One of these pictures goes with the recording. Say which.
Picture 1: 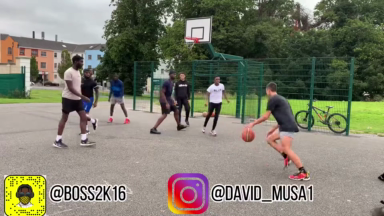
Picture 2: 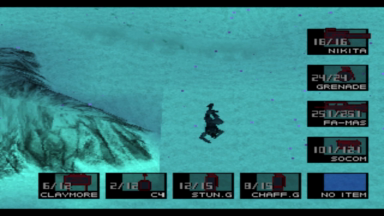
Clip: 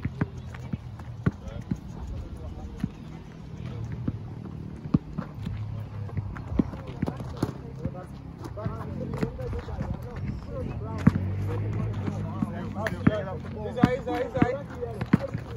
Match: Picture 1